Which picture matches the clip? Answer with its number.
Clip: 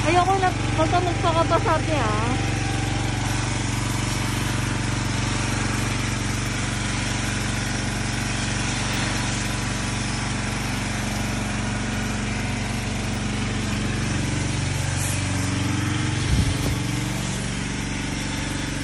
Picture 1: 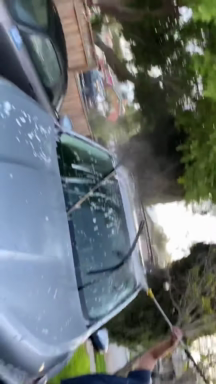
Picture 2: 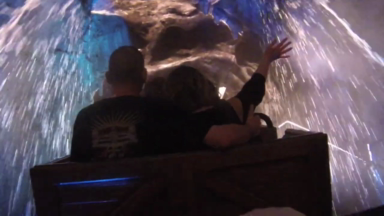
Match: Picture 1